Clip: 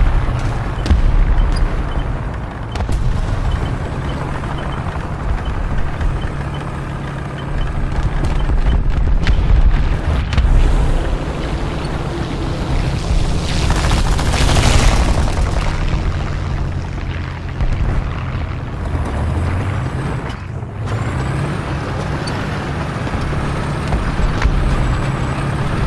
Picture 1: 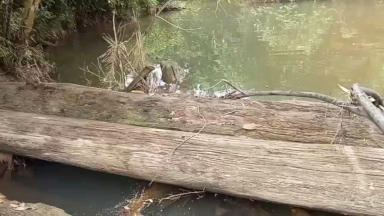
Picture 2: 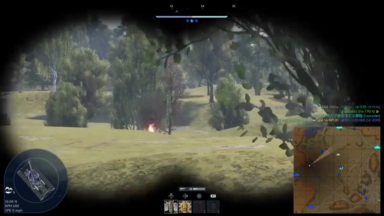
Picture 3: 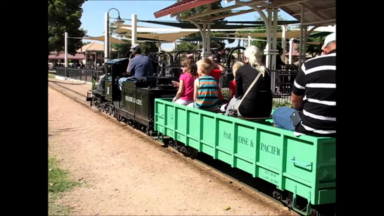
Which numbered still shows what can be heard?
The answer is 2